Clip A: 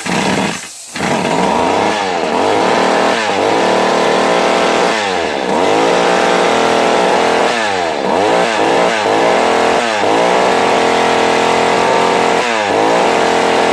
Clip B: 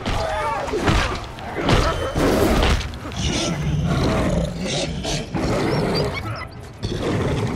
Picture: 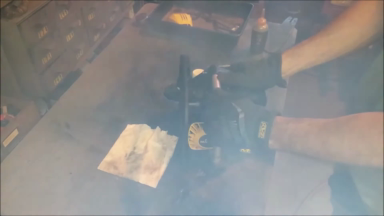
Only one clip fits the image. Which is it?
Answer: A